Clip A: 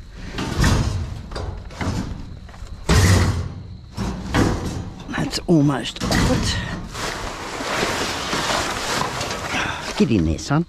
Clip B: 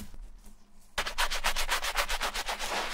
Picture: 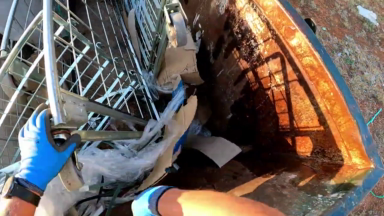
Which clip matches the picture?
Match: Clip A